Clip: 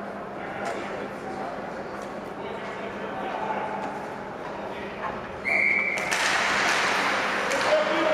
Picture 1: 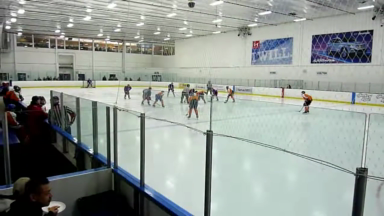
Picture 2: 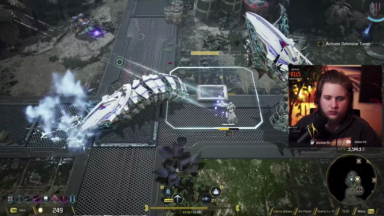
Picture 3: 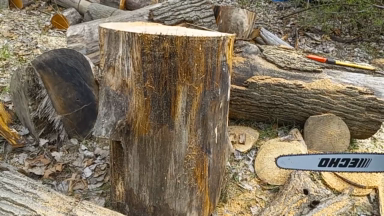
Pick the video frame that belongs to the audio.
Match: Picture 1